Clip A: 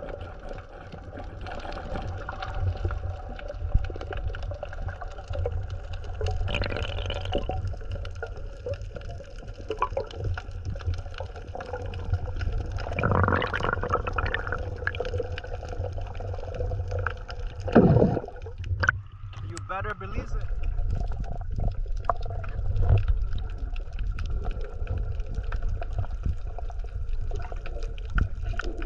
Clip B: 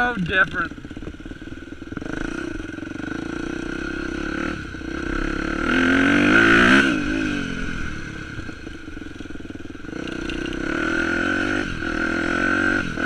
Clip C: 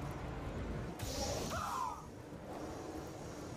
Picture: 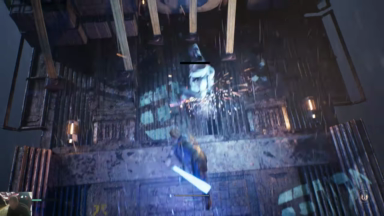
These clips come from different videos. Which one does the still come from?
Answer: C